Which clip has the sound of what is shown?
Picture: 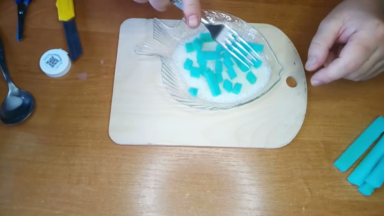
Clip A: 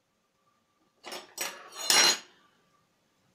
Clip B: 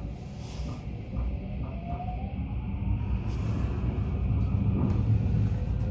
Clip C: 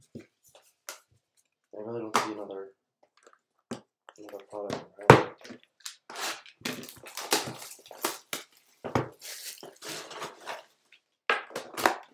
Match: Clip A